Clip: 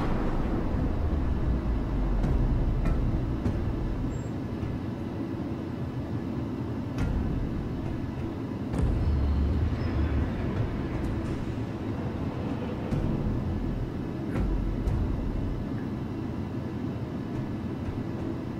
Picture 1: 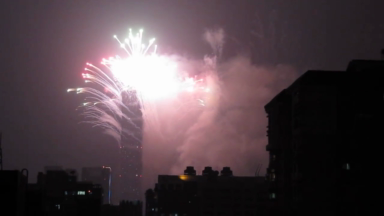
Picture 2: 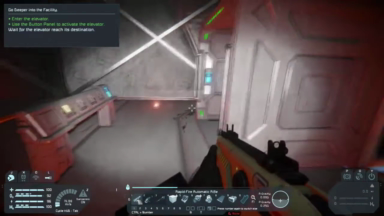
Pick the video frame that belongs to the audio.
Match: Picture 2